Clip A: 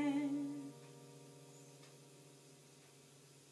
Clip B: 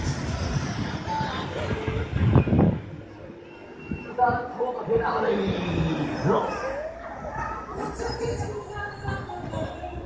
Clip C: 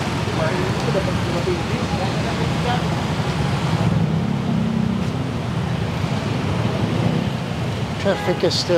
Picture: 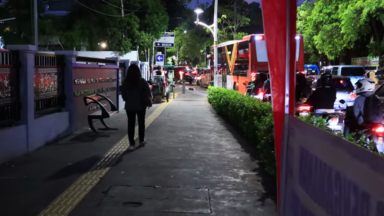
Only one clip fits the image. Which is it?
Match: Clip C